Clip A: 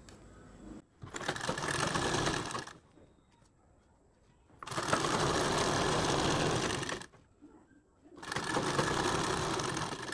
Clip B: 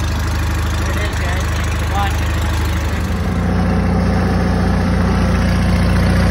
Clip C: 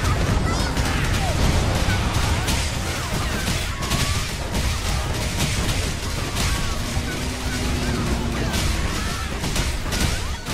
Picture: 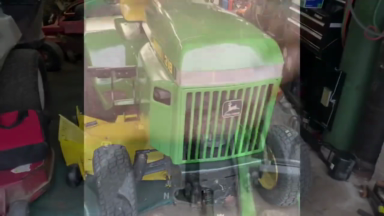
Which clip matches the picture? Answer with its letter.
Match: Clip B